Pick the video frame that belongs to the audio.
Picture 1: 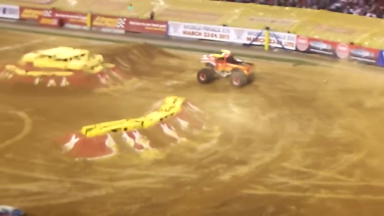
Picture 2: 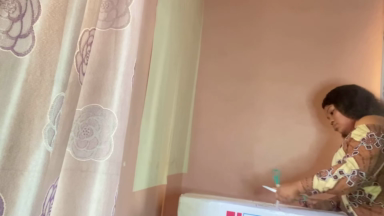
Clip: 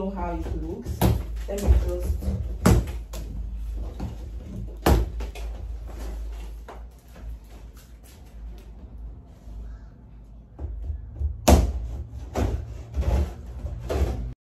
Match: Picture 2